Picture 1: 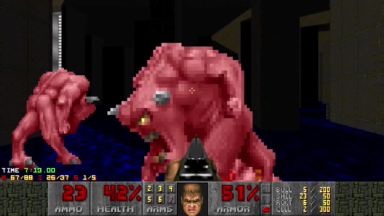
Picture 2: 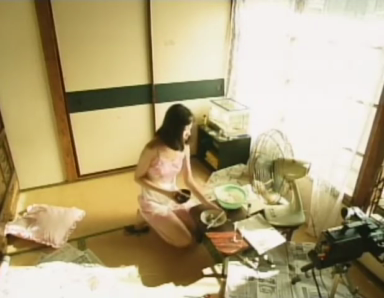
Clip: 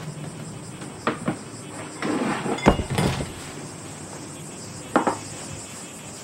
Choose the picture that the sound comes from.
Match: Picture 2